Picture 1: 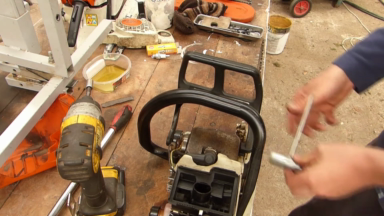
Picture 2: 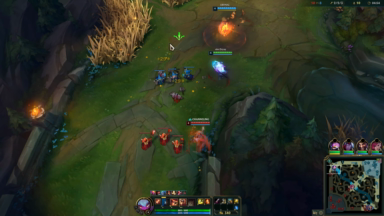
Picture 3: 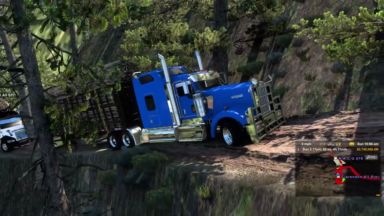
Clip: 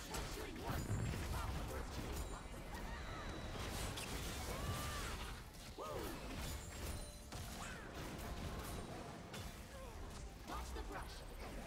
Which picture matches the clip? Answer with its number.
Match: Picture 2